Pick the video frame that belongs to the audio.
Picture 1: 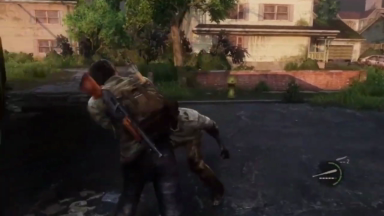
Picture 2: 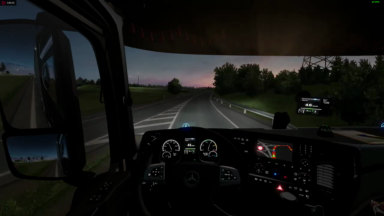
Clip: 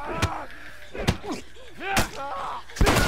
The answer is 1